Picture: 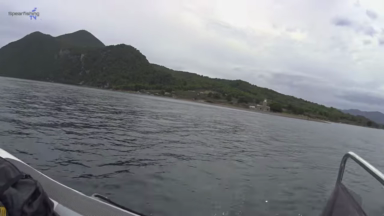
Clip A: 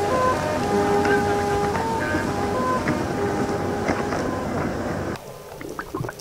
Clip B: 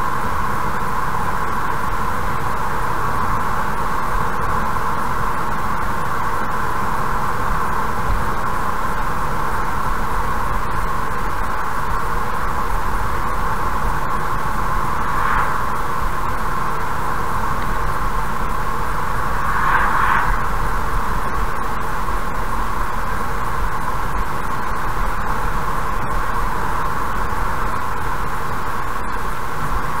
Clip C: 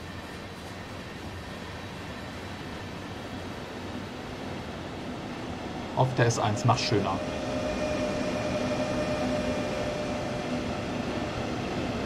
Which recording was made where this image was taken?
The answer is A